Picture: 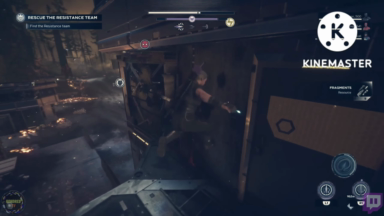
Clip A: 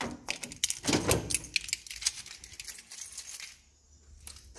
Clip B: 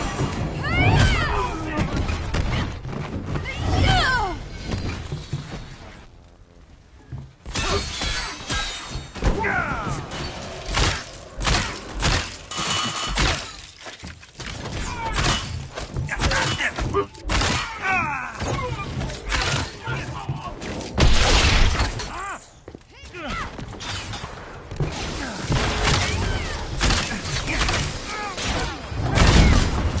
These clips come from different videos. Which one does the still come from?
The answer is B